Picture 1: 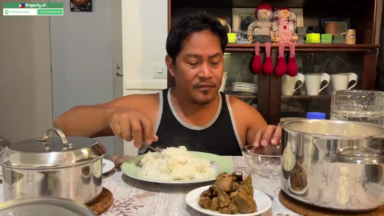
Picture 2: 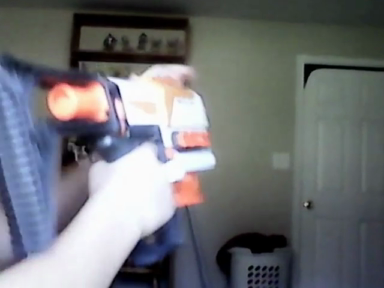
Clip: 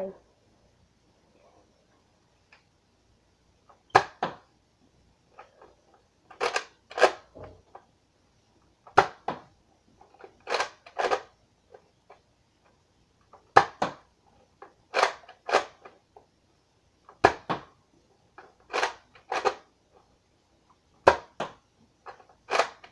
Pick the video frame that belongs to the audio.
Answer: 2